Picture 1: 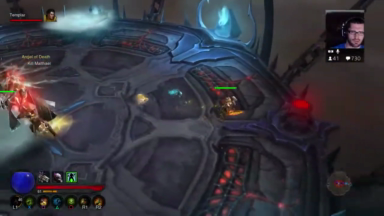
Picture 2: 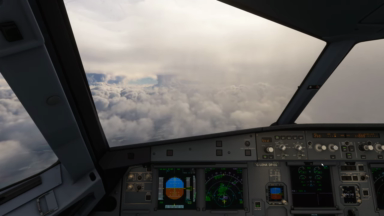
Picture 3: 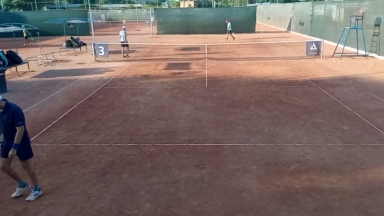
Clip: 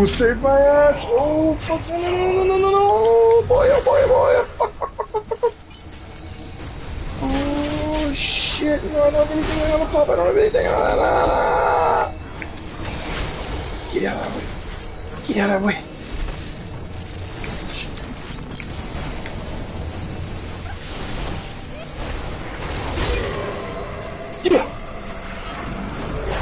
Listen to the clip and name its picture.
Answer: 1